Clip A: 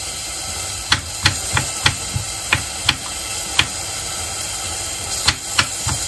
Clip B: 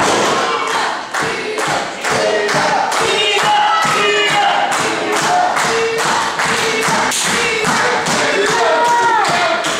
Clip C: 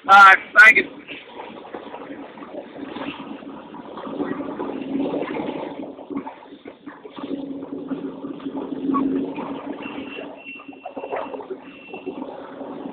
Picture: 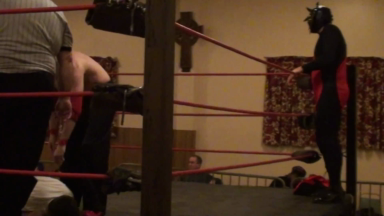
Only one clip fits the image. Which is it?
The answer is B